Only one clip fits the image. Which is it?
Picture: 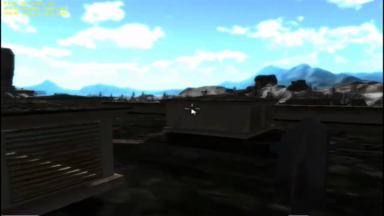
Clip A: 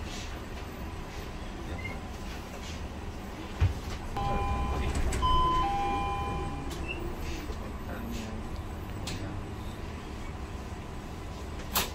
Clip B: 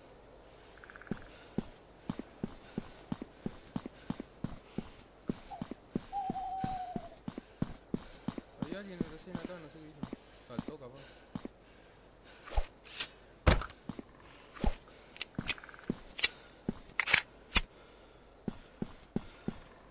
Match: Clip B